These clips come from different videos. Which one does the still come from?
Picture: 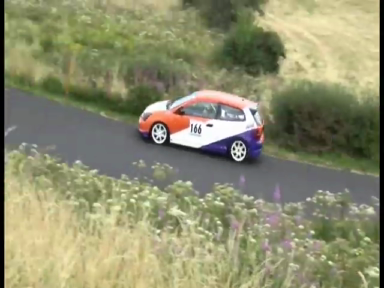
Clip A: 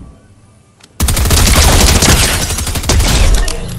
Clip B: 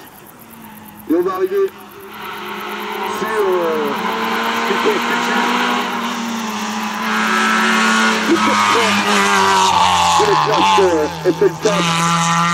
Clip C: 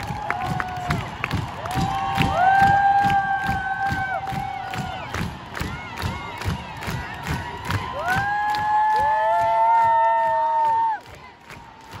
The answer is B